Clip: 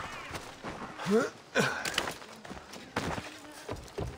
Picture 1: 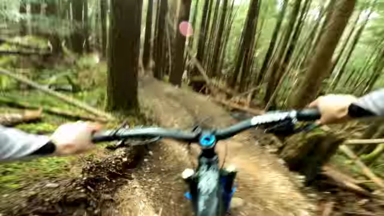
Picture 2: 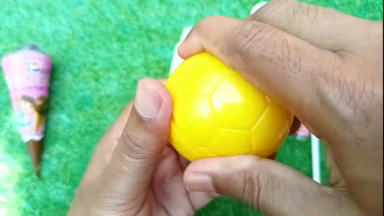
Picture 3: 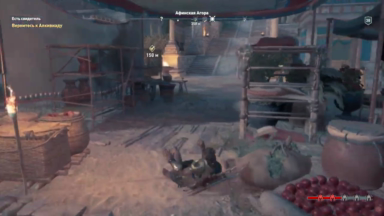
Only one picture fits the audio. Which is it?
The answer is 3